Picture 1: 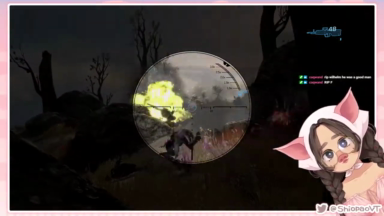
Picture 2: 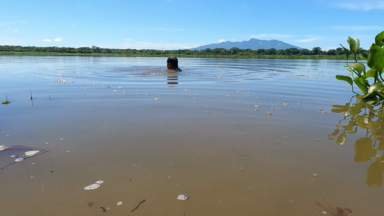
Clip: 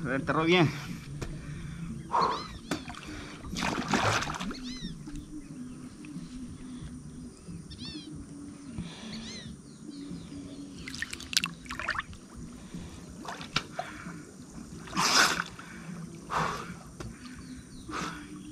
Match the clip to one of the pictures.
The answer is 2